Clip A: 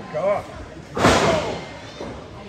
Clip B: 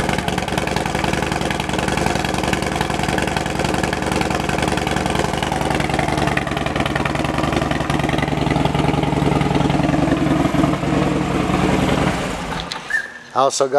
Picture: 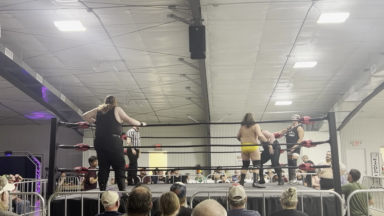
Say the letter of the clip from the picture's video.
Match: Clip A